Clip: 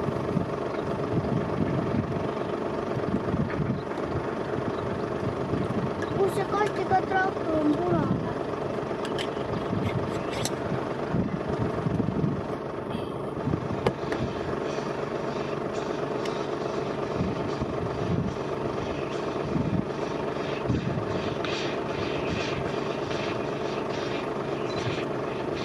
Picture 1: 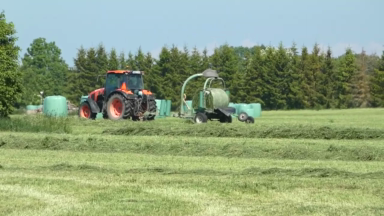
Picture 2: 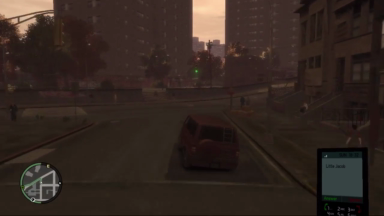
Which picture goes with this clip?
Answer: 1